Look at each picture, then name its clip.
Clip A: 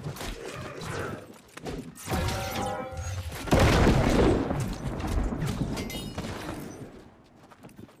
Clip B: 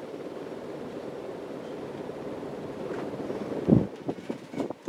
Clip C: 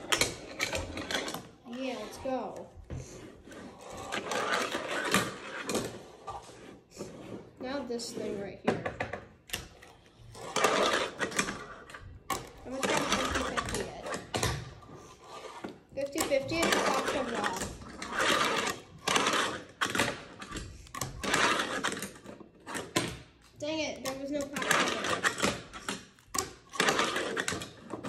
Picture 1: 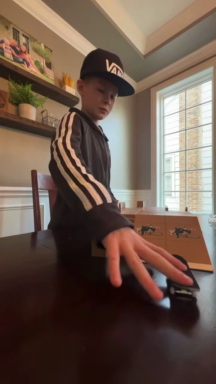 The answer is C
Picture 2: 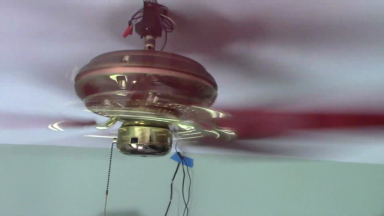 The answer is B